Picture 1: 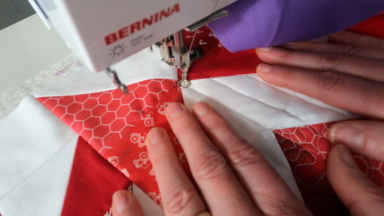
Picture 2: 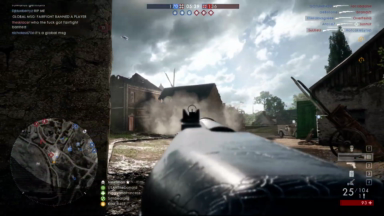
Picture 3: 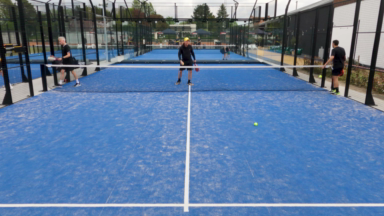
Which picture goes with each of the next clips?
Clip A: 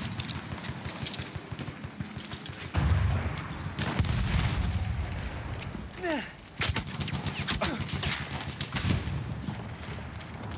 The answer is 2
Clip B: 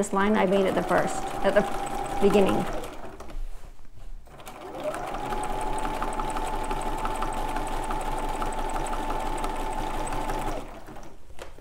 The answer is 1